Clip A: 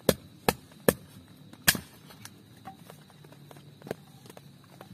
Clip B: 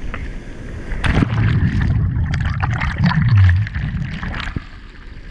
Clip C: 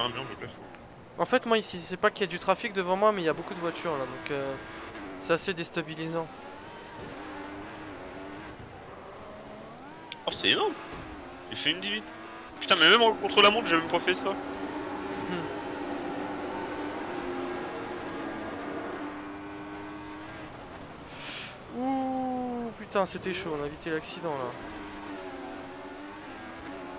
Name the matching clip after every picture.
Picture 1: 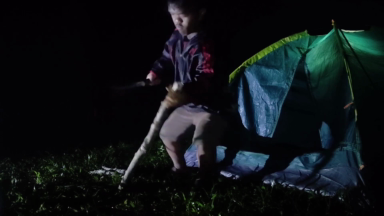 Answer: A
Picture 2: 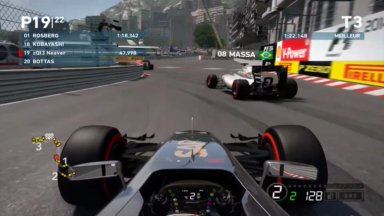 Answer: C